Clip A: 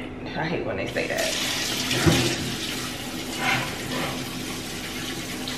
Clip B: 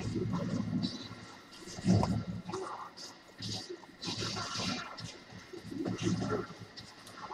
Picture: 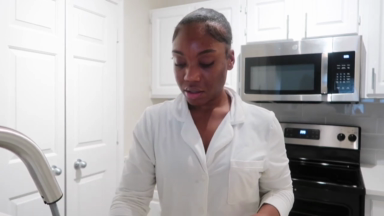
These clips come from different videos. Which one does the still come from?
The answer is A